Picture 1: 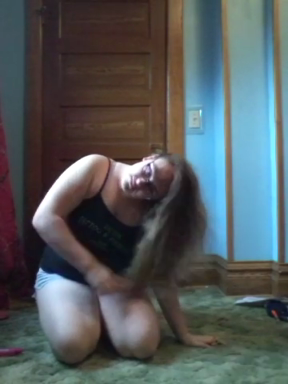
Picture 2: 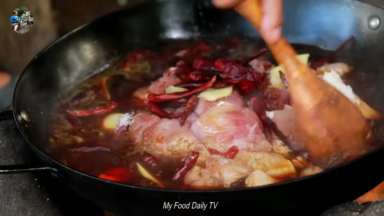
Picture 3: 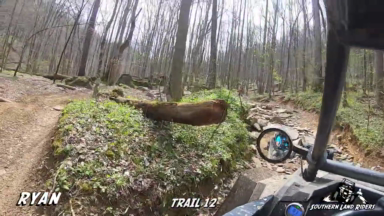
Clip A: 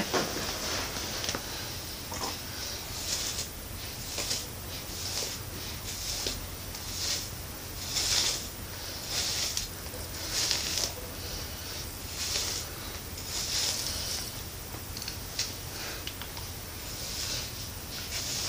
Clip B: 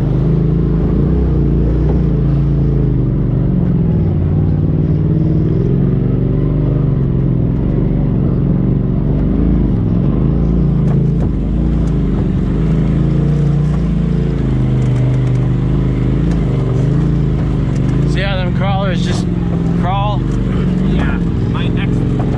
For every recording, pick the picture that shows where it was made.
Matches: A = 1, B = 3